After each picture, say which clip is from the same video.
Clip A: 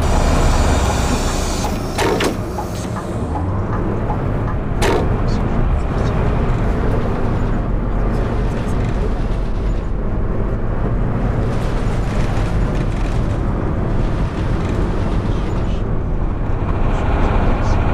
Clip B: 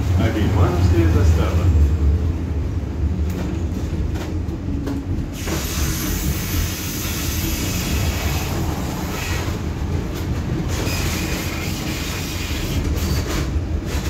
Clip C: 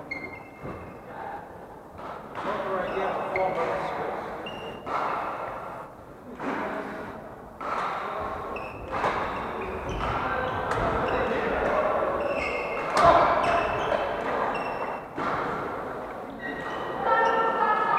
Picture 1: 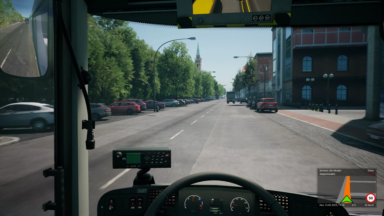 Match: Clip A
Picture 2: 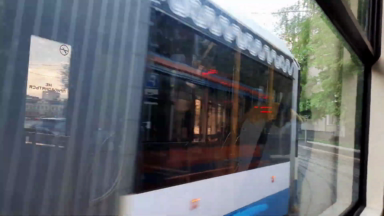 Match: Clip B